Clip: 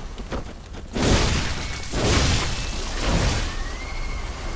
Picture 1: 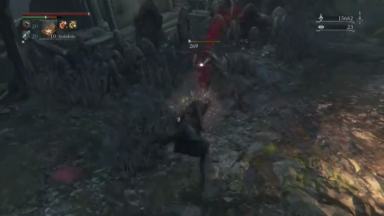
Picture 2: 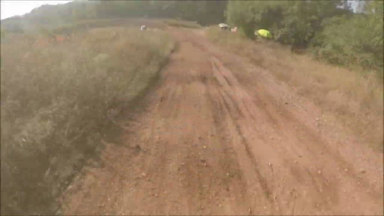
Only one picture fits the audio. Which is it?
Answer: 1